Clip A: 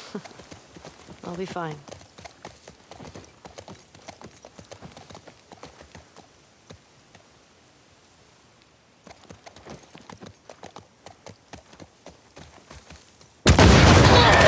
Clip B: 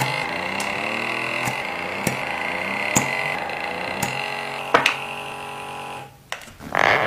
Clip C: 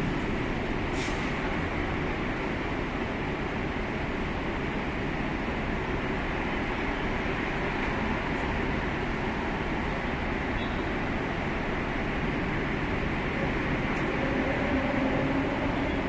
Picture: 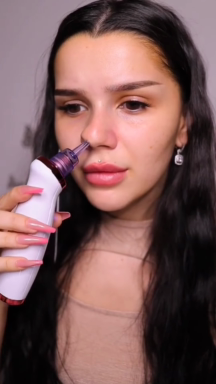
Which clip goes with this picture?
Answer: B